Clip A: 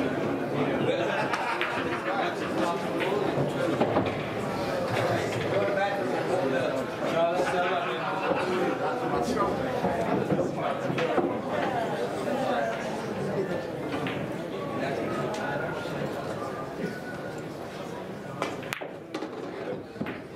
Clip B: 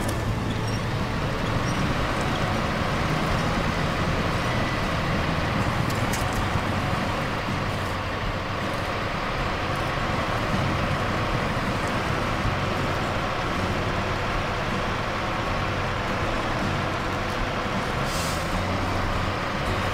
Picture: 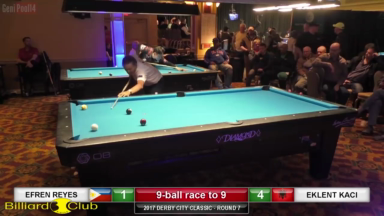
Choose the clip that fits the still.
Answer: A